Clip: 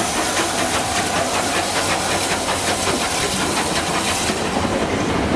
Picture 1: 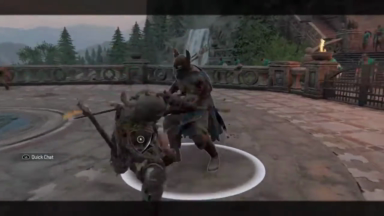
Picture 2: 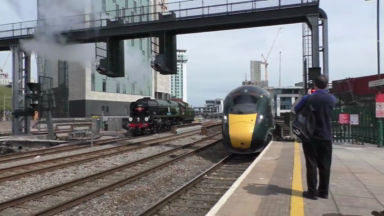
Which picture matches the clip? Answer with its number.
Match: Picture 2